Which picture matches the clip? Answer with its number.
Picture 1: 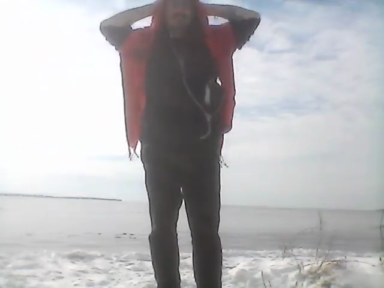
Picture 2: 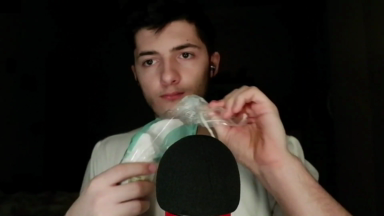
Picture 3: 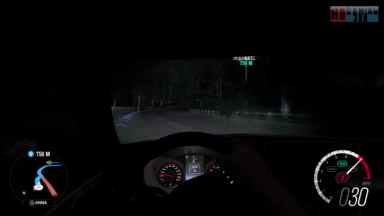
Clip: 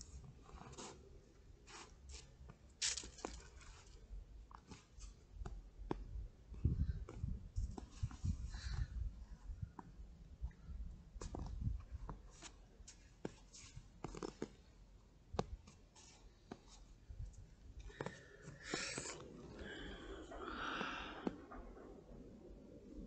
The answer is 1